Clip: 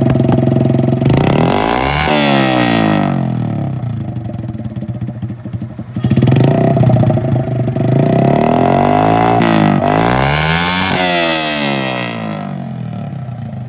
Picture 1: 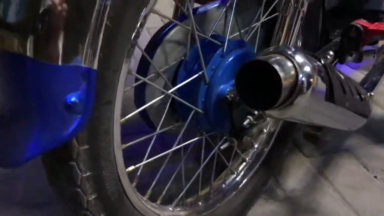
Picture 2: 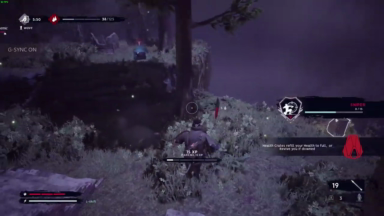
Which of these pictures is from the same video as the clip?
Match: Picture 1